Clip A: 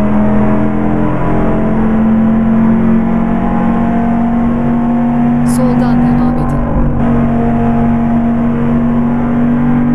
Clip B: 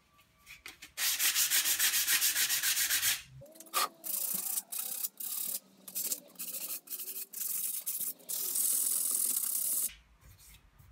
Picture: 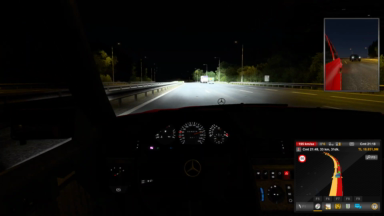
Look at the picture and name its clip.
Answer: A